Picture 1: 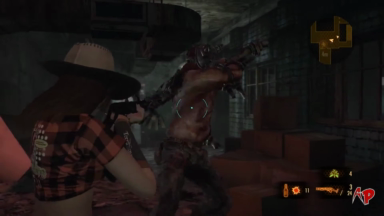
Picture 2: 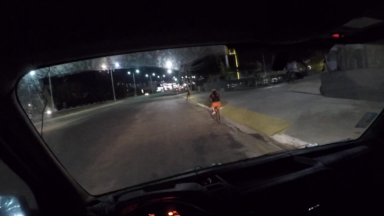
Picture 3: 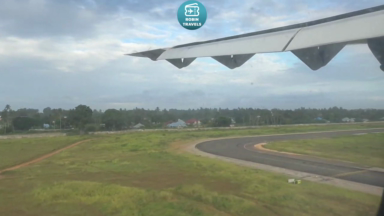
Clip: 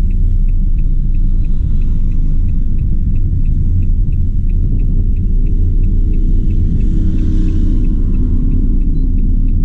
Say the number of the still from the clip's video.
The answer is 2